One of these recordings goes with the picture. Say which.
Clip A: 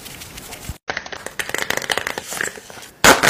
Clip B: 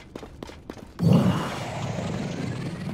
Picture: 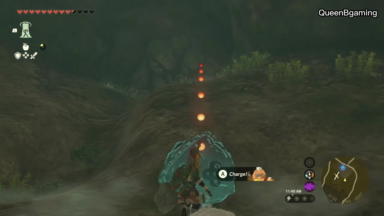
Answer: B